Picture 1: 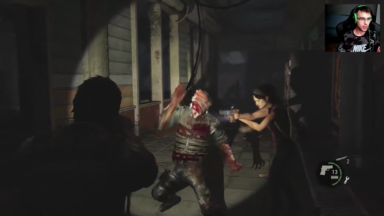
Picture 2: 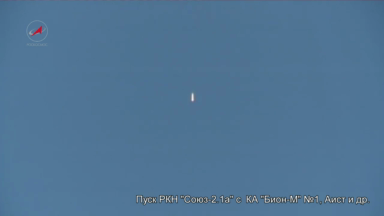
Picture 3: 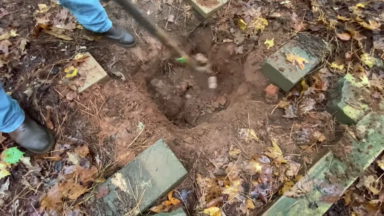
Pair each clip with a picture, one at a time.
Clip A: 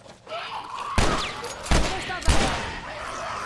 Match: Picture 1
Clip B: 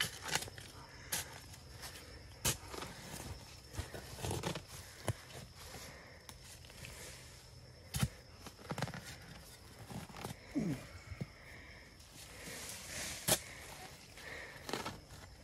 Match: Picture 3